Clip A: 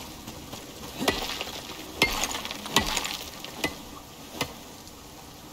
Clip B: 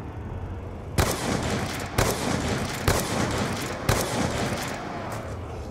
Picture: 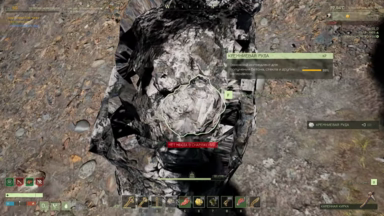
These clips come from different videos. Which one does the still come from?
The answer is A